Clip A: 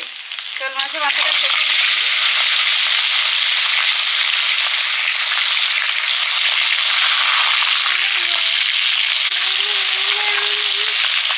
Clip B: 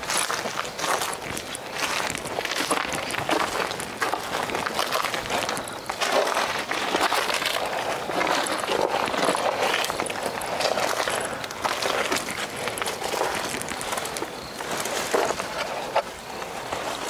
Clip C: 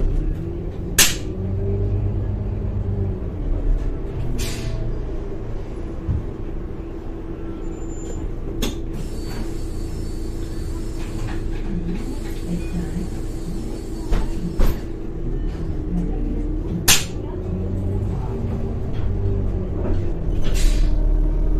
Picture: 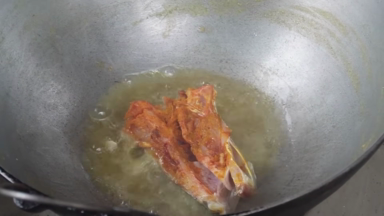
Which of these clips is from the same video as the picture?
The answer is A